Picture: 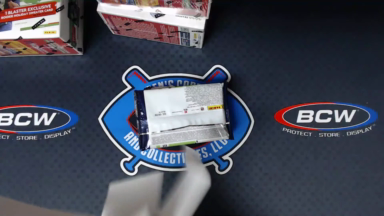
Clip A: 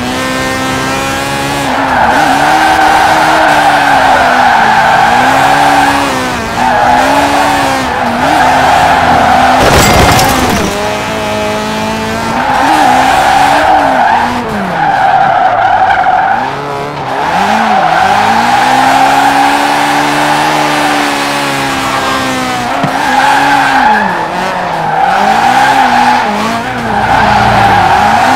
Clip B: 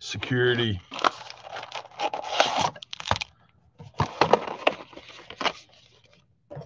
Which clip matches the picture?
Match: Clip B